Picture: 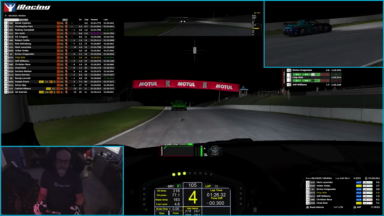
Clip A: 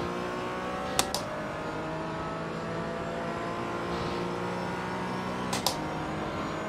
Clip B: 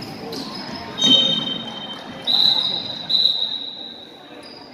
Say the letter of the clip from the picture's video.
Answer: A